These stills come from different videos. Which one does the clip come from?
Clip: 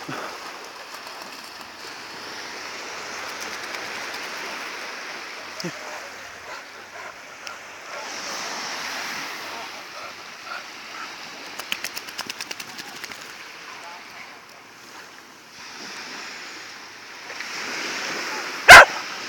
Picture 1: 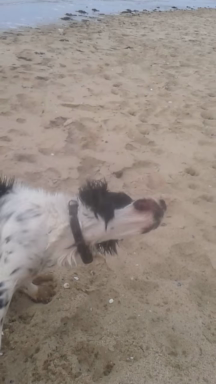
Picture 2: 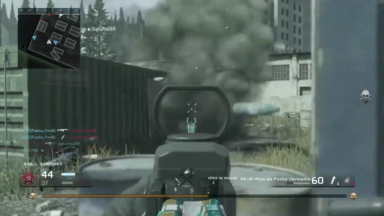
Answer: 1